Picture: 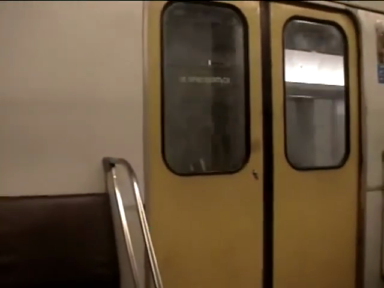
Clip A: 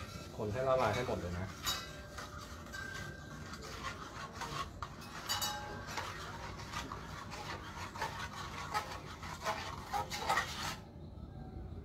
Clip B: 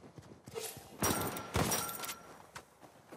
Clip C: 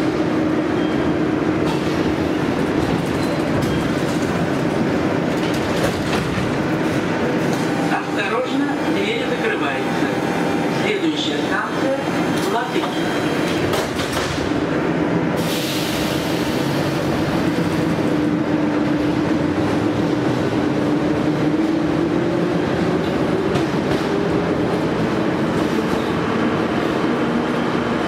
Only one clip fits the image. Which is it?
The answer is C